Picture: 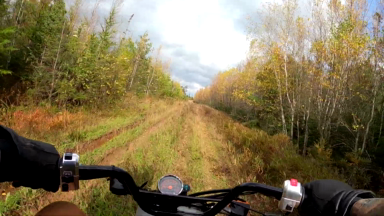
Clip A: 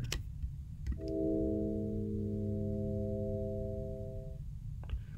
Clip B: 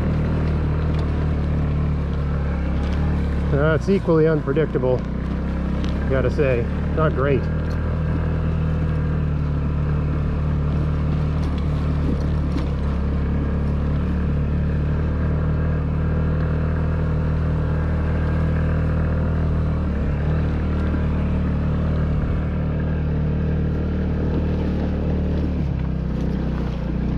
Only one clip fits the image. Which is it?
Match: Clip B